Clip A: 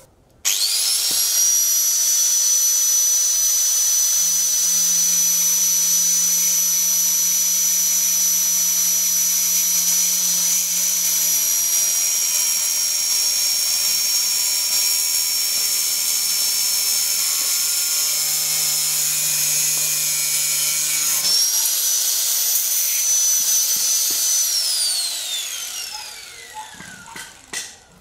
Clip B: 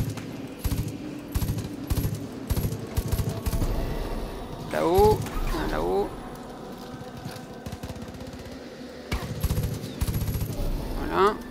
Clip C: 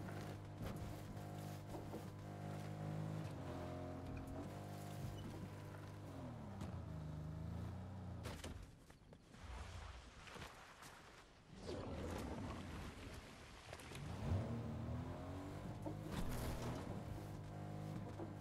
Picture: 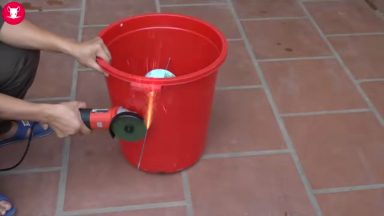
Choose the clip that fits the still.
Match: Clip A